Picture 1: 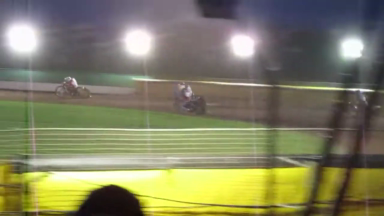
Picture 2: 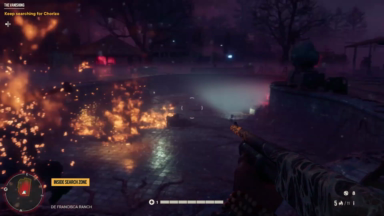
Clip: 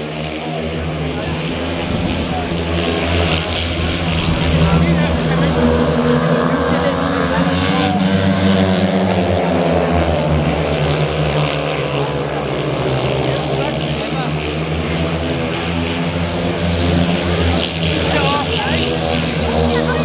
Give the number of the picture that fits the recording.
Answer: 1